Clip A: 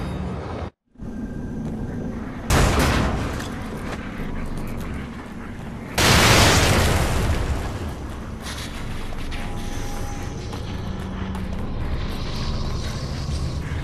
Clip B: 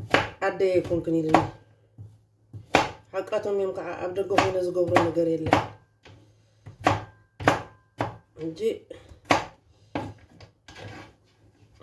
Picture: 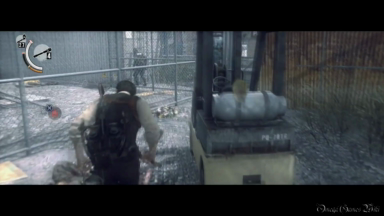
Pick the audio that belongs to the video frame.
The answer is A